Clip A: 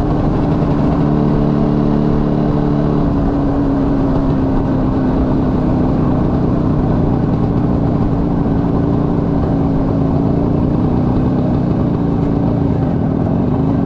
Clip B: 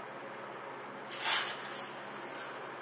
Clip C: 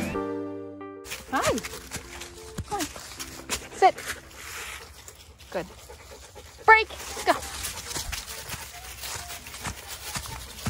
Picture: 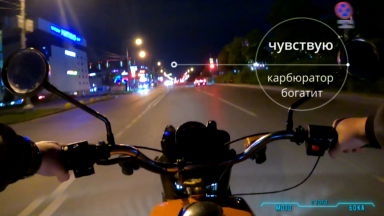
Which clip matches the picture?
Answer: A